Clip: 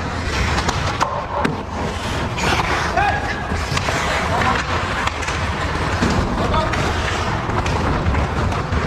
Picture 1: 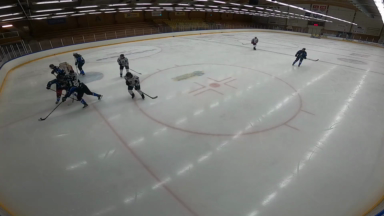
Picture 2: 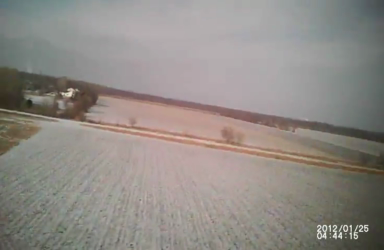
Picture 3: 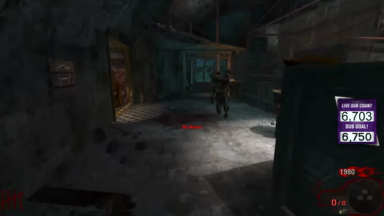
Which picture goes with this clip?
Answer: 1